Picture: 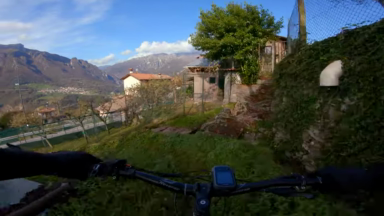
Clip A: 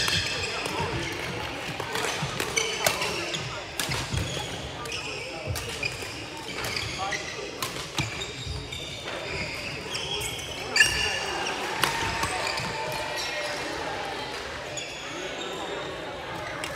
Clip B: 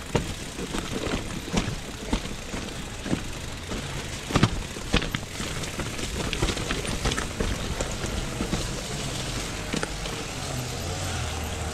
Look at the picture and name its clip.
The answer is B